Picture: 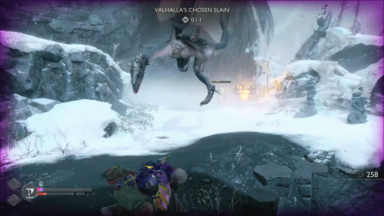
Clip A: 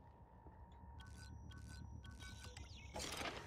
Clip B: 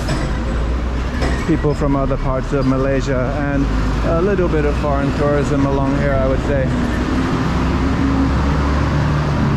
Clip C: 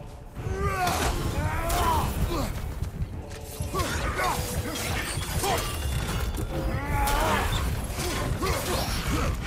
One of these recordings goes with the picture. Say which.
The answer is C